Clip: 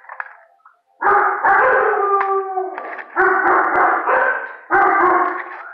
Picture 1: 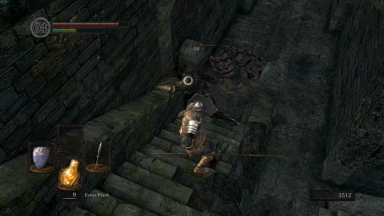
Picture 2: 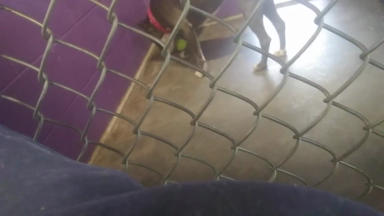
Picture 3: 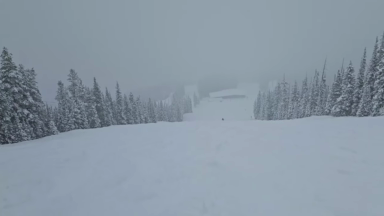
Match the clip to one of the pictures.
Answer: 2